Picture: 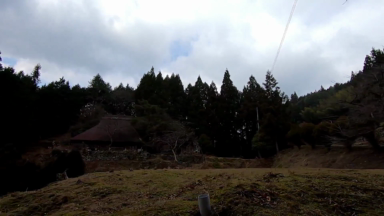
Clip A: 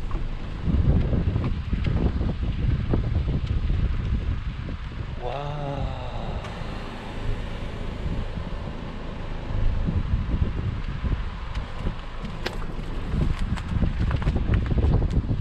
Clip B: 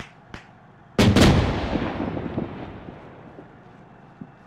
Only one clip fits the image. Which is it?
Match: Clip A